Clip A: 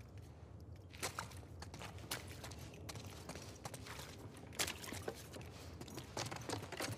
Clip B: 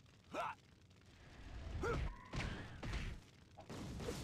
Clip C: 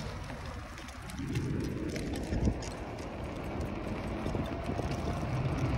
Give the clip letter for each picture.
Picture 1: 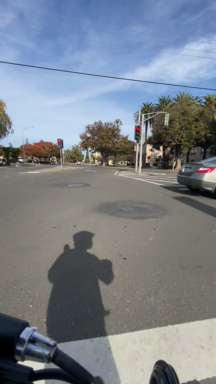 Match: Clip C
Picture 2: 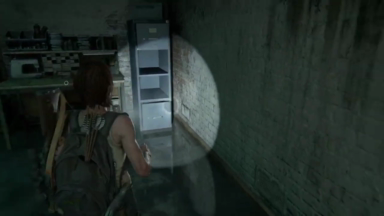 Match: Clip A